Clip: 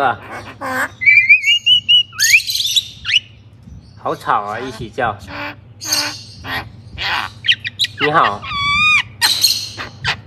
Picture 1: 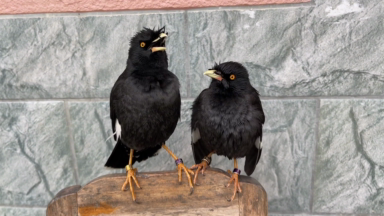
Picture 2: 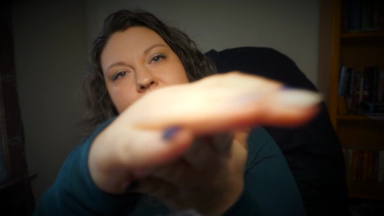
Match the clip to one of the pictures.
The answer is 1